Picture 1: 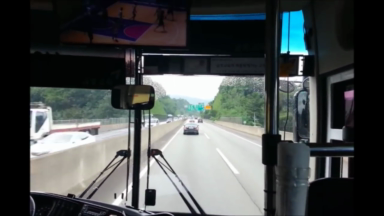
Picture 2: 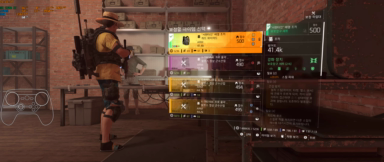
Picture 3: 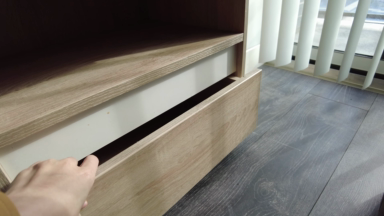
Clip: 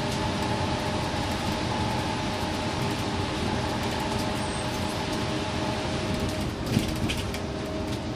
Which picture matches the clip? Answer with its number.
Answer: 1